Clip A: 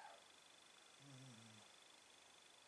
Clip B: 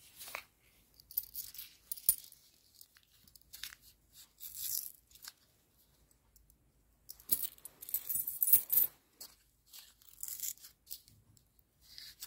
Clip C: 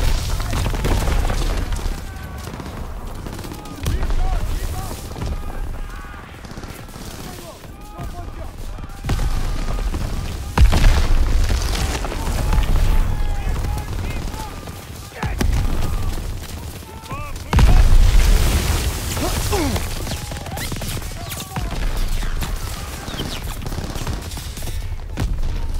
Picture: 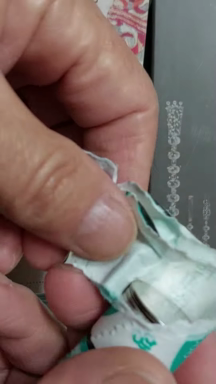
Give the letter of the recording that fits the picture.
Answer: B